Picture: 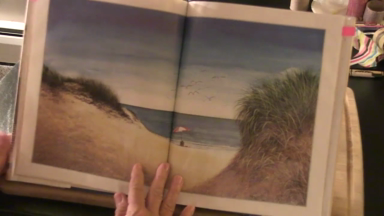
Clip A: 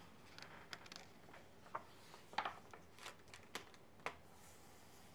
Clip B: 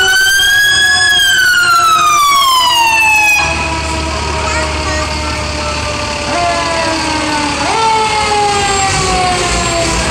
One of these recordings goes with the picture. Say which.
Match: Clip A